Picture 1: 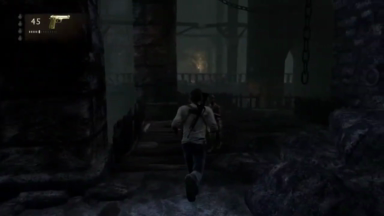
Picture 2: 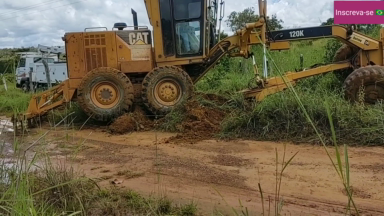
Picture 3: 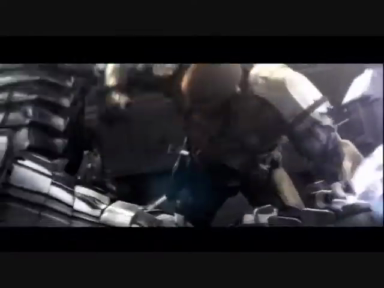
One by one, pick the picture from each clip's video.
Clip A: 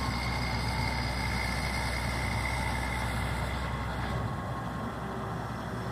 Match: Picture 2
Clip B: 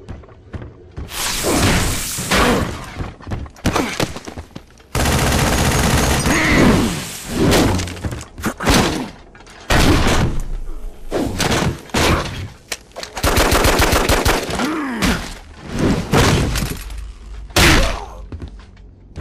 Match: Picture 3